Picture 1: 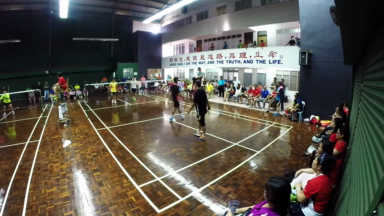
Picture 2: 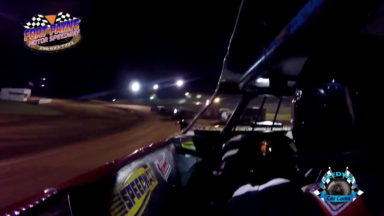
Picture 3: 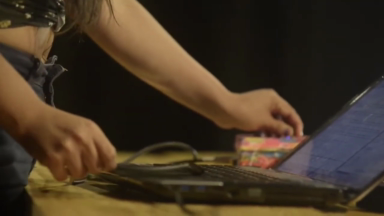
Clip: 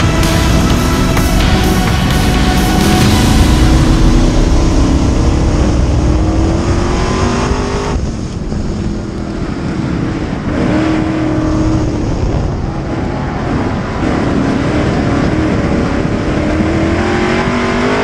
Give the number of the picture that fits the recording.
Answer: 2